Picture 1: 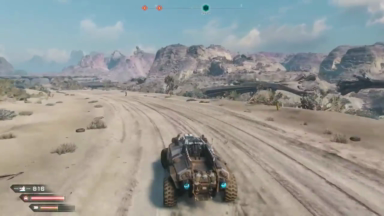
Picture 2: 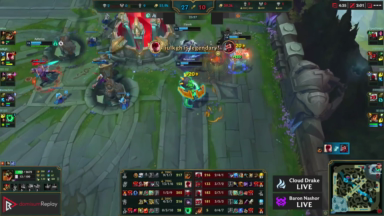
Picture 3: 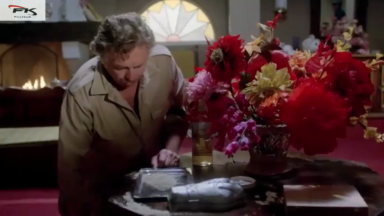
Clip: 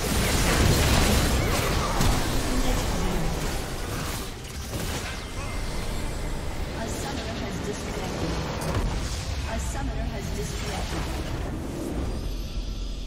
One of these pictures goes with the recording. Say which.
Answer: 2